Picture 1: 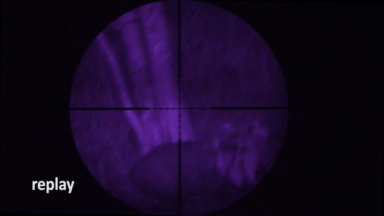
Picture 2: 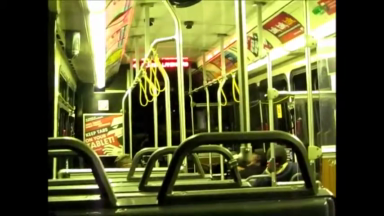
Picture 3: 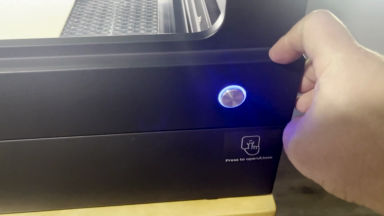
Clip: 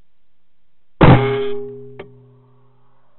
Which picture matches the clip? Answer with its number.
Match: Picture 1